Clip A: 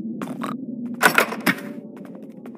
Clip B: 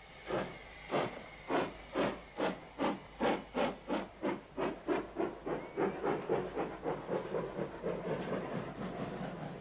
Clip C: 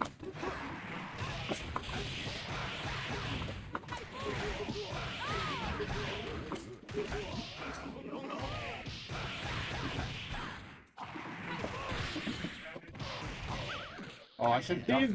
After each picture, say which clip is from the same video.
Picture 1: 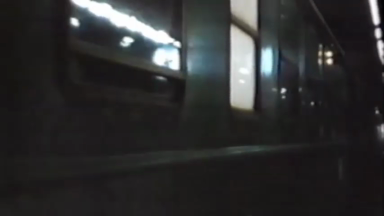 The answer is B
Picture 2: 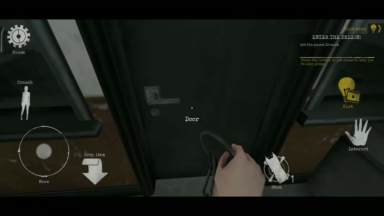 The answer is A